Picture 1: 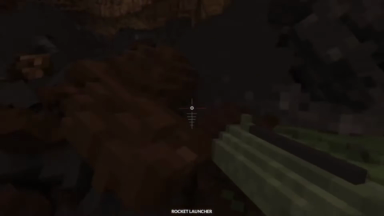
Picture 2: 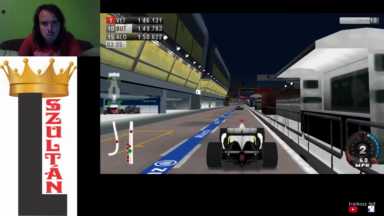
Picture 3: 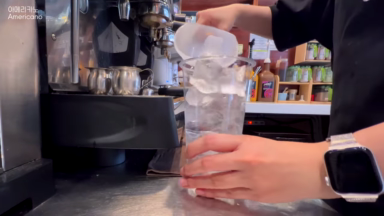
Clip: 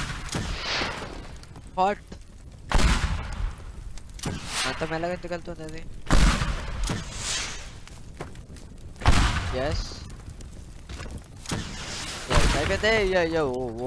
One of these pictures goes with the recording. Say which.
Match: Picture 1